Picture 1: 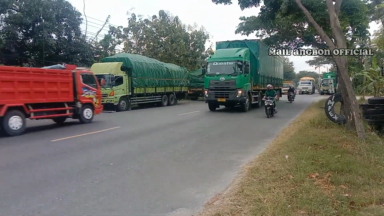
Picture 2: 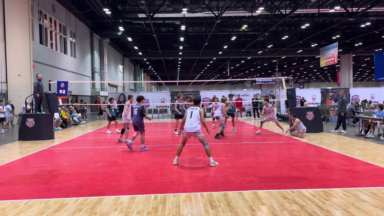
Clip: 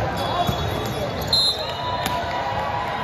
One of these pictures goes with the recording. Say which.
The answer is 2